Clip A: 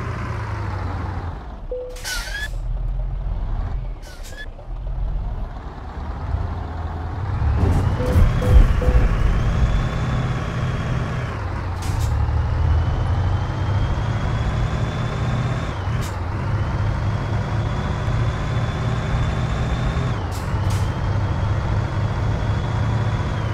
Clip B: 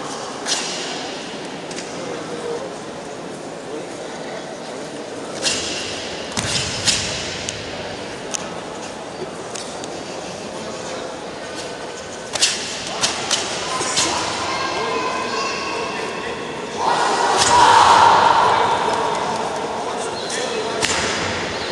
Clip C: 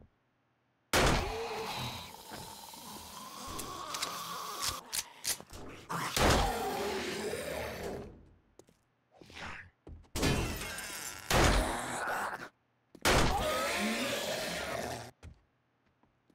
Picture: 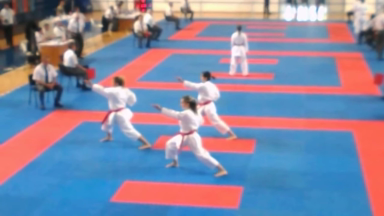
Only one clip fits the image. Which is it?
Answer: B